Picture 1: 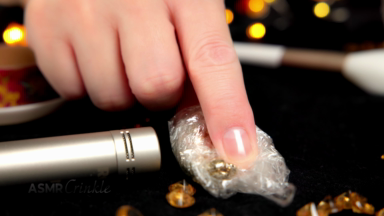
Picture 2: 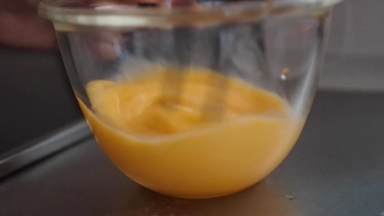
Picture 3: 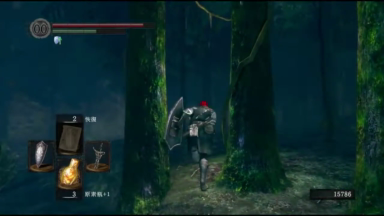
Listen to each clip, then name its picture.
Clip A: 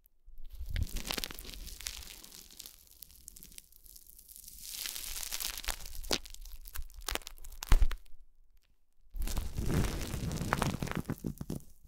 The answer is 1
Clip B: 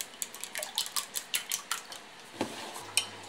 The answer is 2